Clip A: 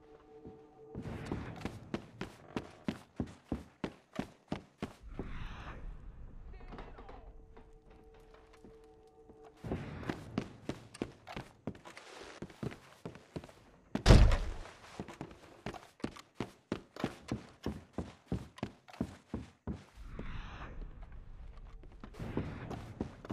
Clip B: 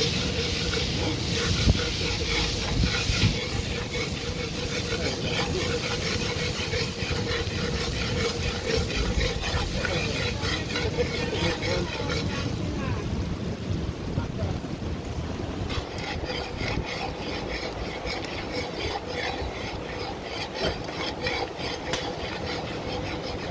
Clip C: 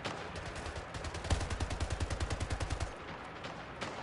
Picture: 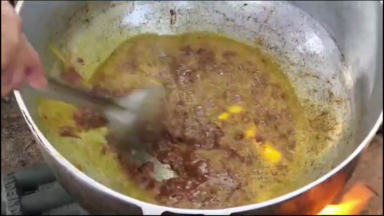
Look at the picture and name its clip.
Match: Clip B